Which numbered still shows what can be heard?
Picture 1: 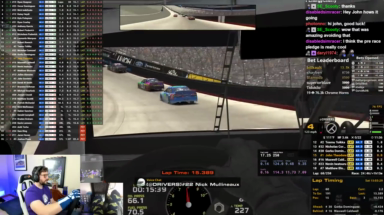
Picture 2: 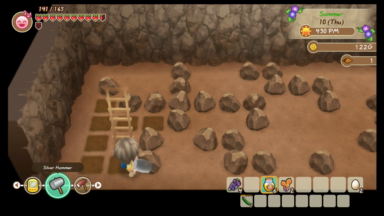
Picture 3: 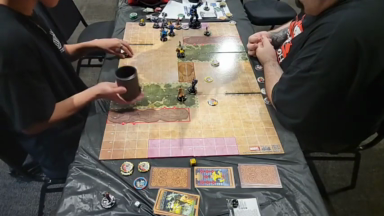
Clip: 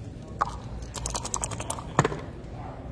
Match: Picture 3